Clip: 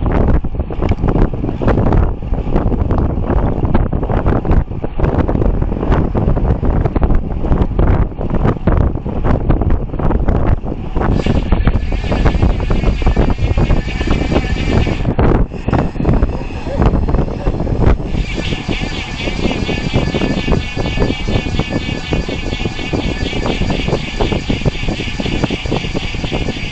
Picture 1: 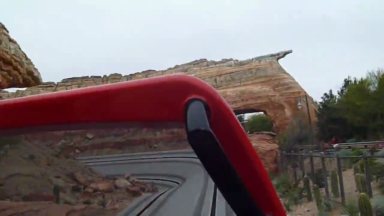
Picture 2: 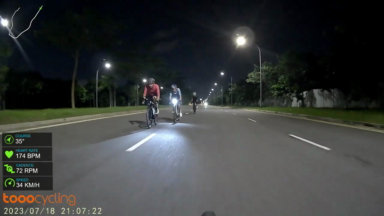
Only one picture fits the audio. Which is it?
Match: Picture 2